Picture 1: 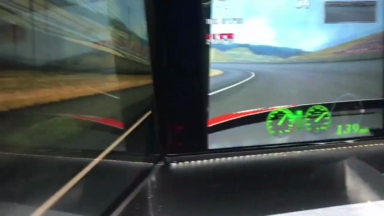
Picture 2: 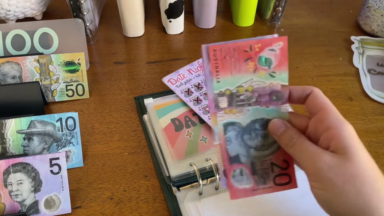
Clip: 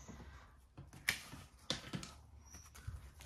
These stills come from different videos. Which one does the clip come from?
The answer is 2